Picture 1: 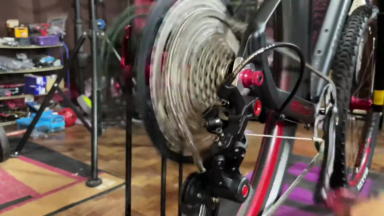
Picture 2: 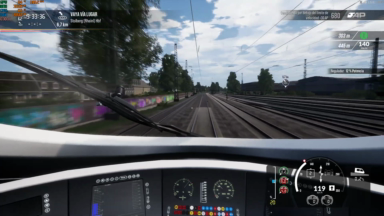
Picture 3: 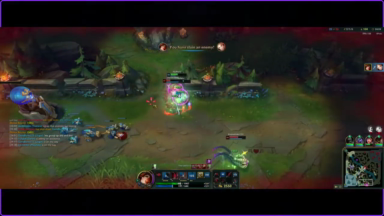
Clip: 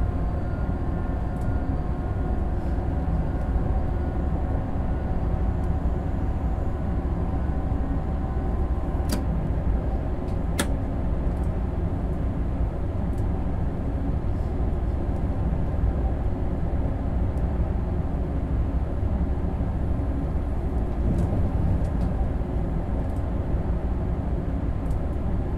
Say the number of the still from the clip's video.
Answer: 2